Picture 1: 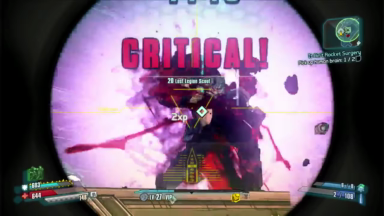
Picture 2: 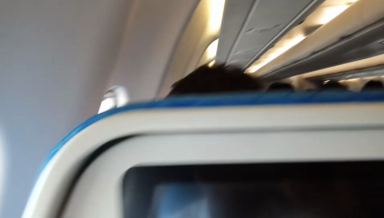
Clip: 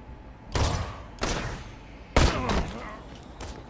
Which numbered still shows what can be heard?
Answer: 1